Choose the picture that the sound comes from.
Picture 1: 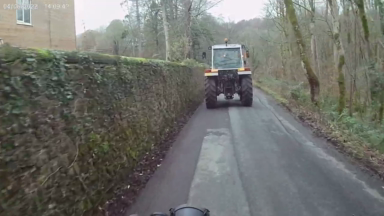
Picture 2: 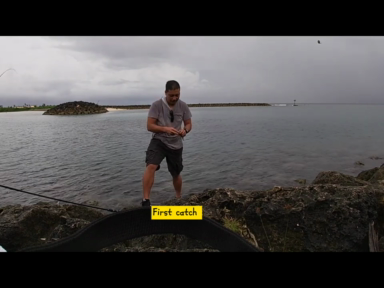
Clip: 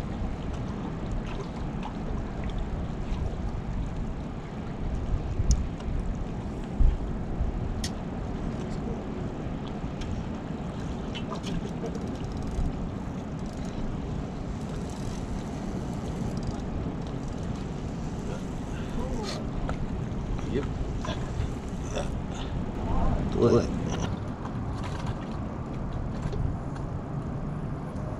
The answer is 2